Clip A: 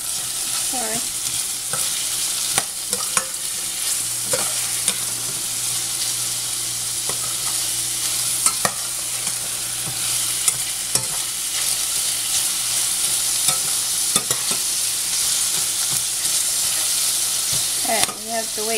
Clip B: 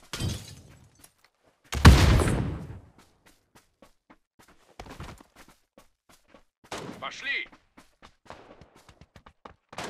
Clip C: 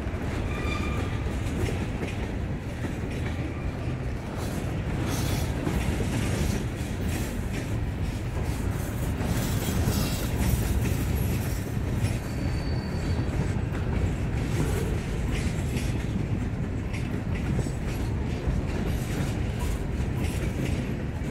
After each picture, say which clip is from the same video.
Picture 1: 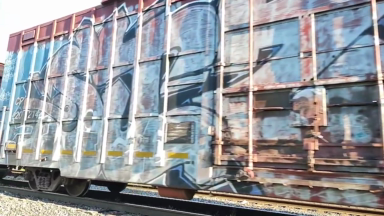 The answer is C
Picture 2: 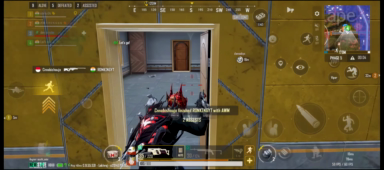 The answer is B